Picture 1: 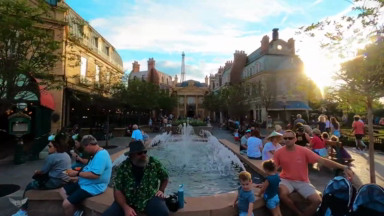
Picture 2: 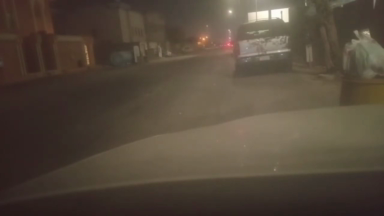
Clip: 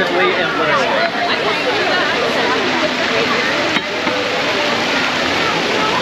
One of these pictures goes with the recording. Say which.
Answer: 1